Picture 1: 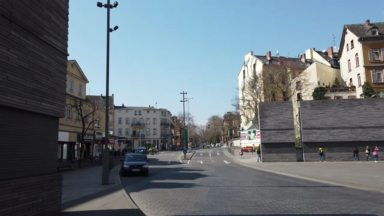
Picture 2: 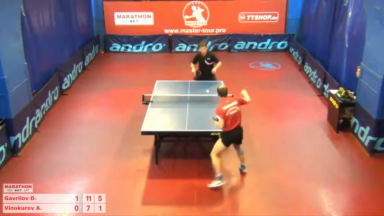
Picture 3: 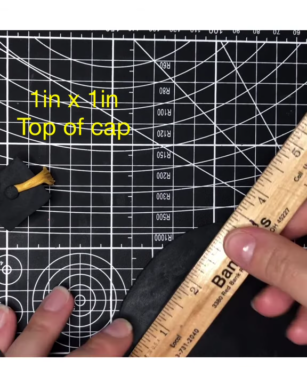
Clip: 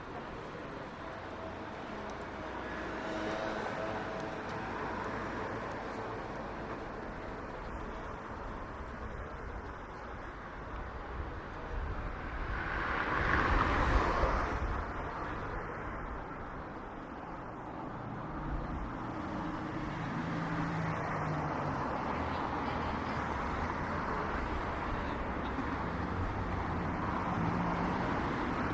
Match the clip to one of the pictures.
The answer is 1